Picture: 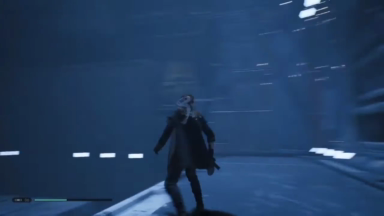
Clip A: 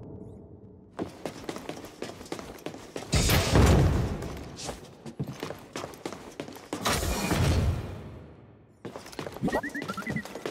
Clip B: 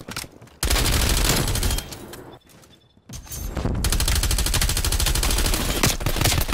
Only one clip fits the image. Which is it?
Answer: A